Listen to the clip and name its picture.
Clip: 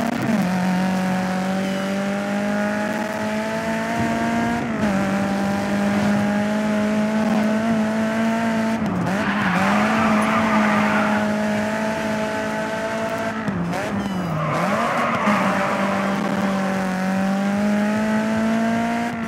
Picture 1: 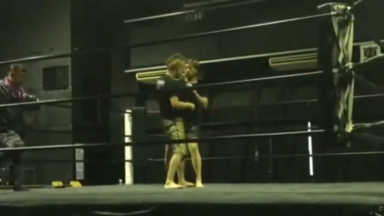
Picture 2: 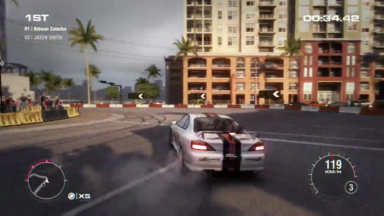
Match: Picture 2